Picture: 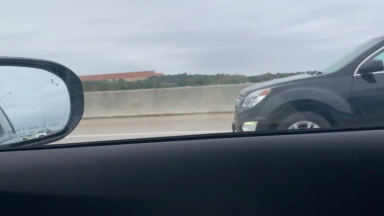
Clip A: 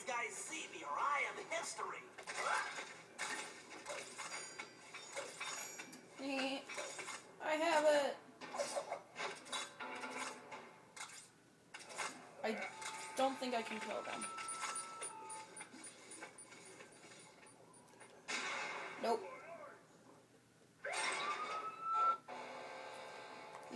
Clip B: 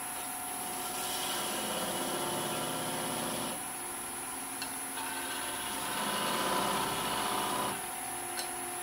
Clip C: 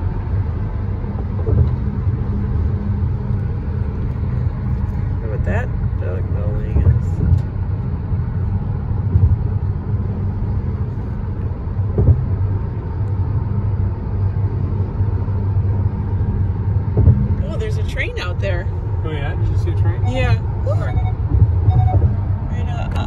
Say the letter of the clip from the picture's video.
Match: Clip C